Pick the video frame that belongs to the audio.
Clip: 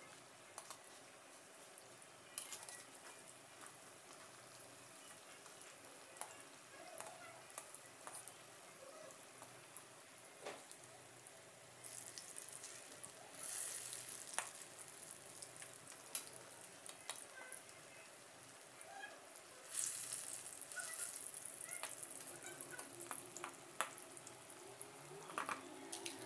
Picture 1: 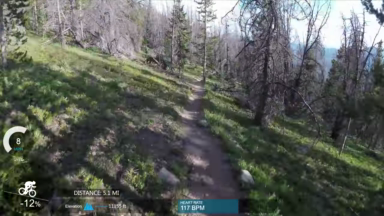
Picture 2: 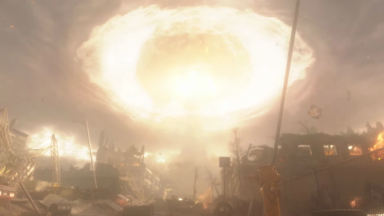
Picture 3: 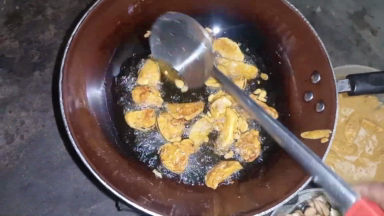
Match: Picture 3